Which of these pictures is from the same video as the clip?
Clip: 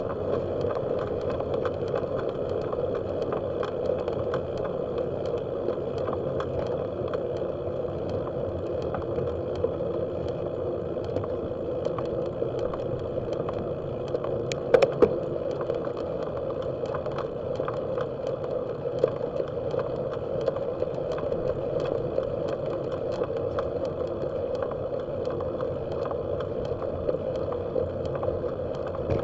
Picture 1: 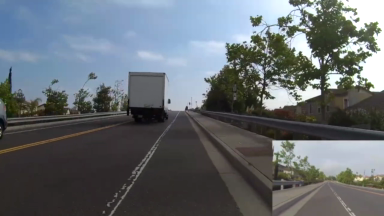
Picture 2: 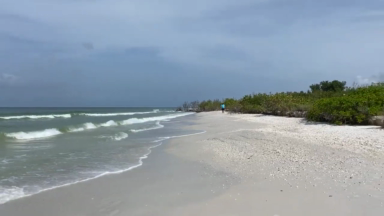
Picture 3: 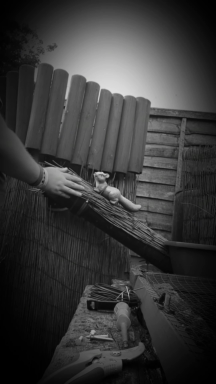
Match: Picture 1